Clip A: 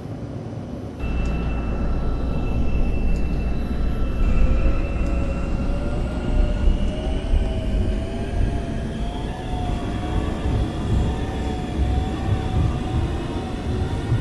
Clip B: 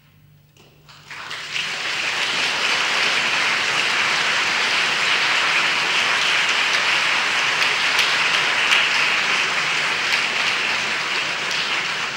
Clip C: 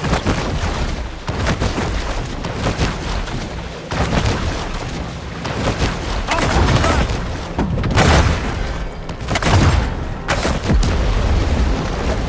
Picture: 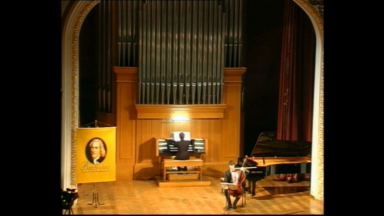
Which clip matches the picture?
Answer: B